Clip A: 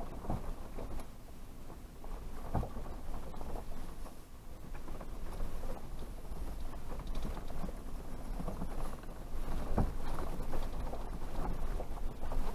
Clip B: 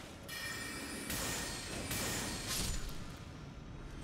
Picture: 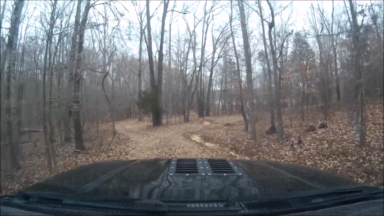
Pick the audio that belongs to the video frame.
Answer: A